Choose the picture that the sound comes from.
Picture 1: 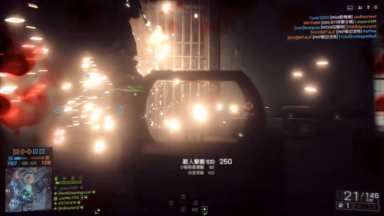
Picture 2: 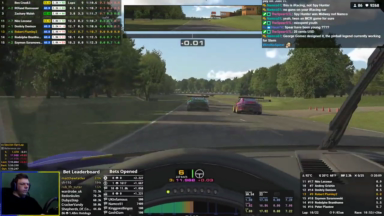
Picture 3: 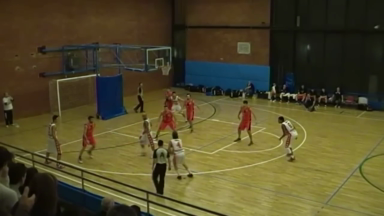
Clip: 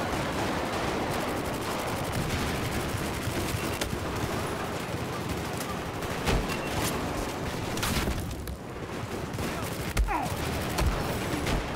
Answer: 1